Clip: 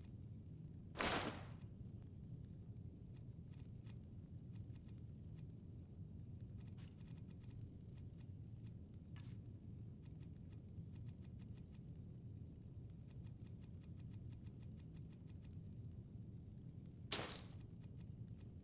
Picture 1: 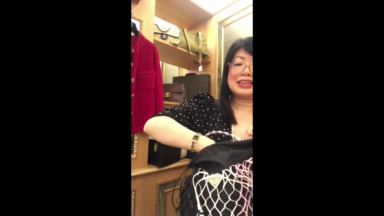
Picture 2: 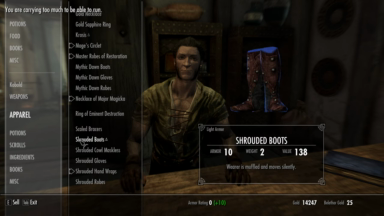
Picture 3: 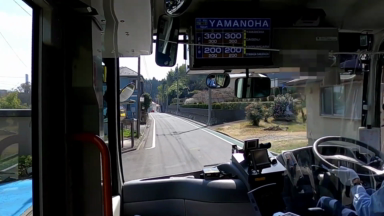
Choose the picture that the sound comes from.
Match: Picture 2